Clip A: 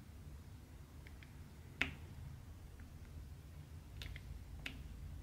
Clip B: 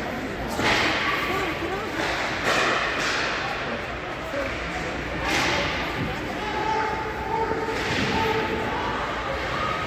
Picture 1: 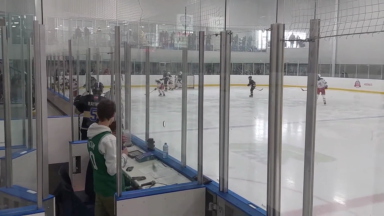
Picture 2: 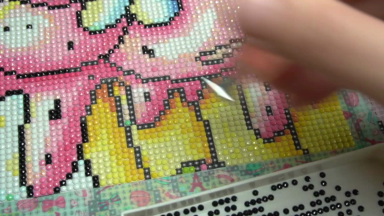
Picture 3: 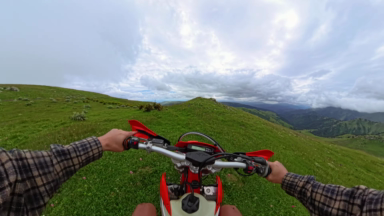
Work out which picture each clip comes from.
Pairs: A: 2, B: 1